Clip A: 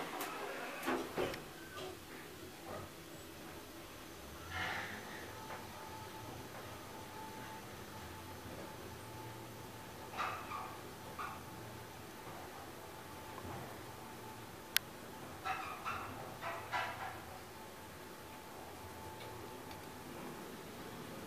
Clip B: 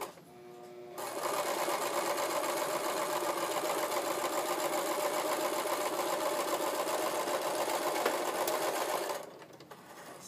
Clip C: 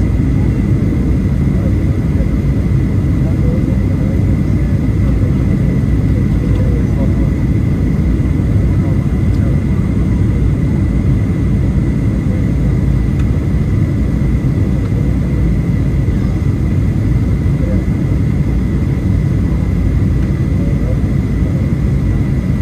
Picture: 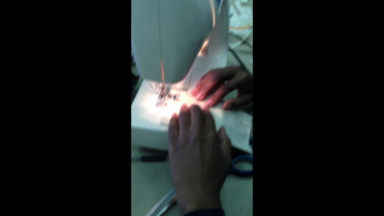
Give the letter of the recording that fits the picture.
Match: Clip B